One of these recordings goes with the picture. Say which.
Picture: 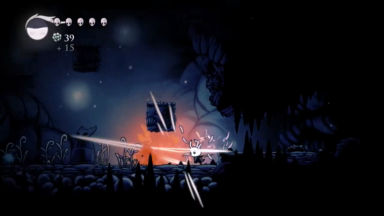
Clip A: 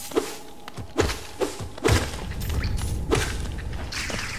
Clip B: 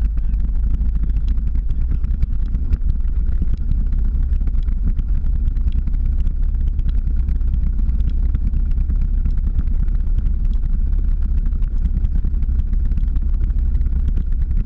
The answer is A